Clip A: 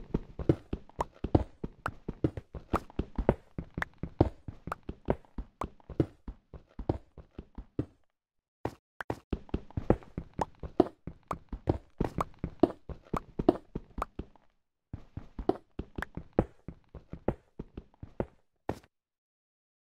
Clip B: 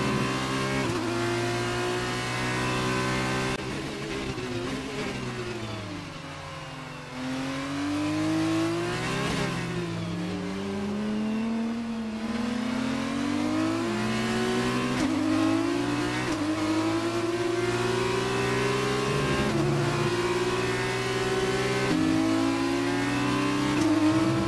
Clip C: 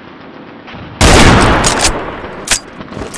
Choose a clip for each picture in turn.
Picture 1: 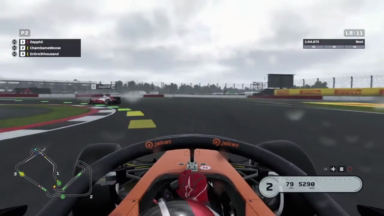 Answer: B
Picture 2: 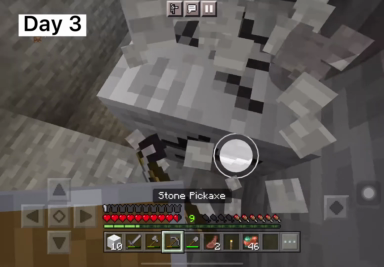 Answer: A